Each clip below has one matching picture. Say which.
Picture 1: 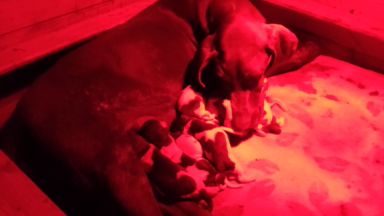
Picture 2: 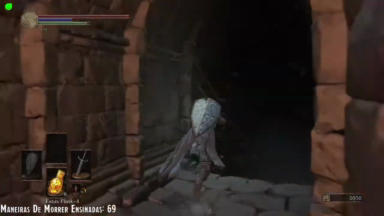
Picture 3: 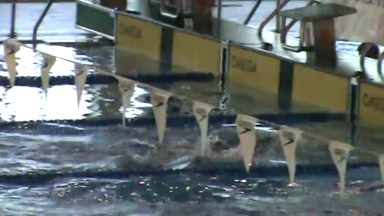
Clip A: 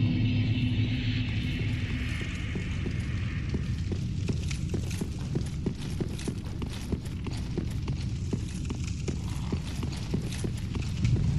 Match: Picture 2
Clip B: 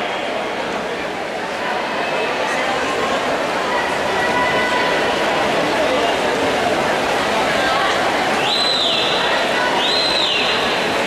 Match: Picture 3